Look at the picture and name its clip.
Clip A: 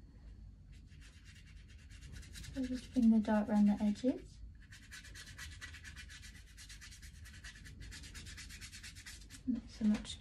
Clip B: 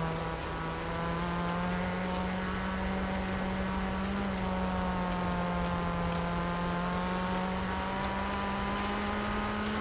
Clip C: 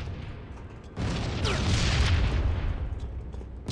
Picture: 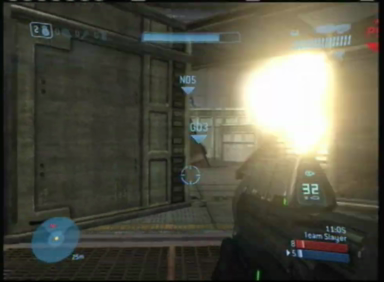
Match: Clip C